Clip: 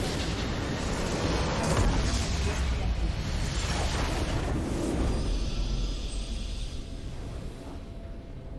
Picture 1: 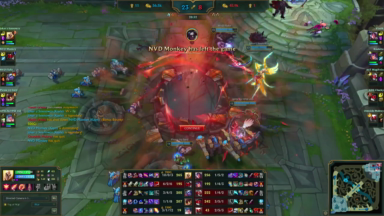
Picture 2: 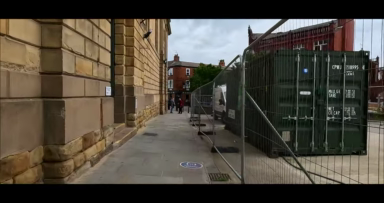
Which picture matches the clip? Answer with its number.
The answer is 1